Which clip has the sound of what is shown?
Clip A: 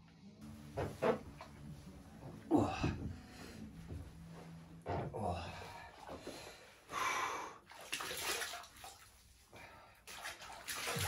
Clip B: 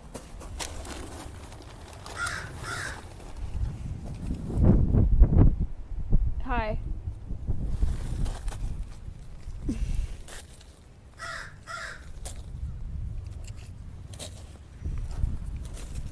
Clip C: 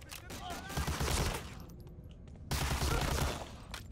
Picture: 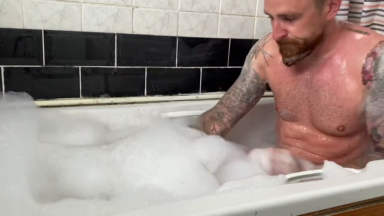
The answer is A